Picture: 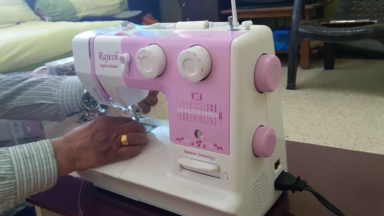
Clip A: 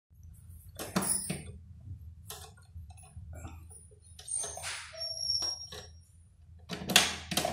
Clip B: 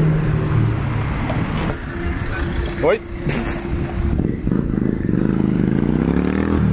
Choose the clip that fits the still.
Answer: A